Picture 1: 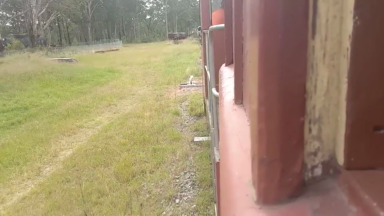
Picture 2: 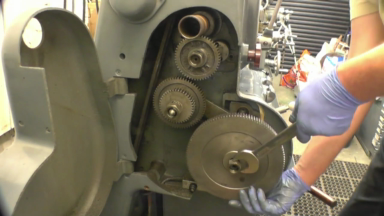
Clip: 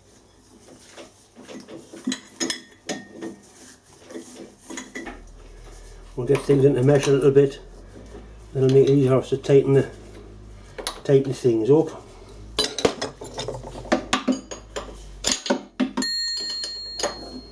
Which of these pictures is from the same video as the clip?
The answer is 2